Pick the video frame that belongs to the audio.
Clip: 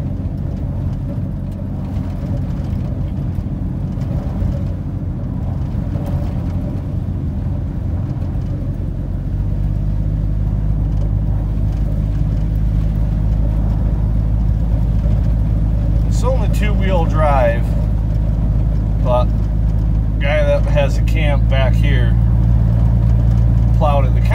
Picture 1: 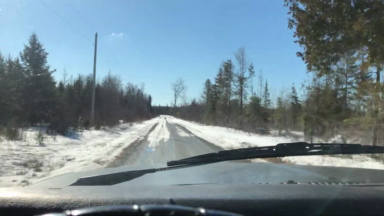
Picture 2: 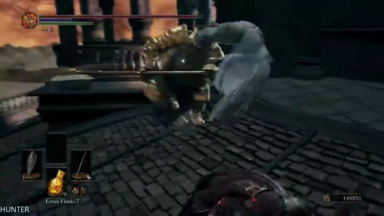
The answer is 1